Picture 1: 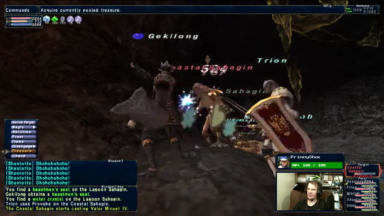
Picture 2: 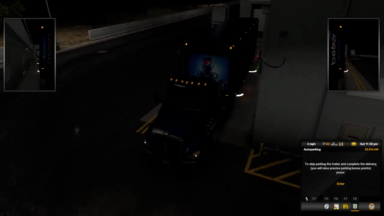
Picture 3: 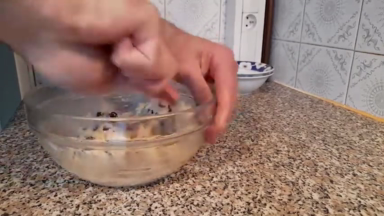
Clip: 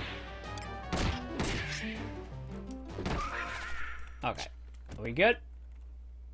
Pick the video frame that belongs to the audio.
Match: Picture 1